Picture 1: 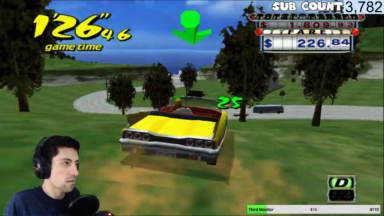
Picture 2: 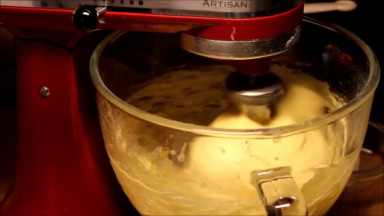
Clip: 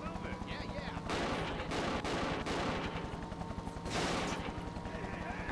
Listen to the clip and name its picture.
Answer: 1